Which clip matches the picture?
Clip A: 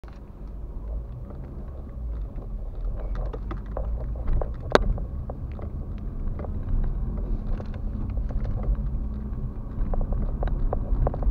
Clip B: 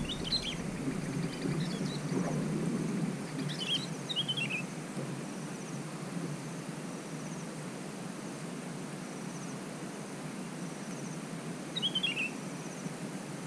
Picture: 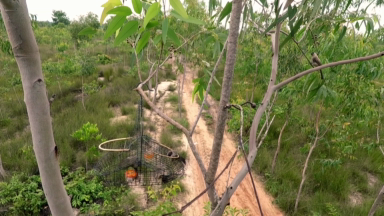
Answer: B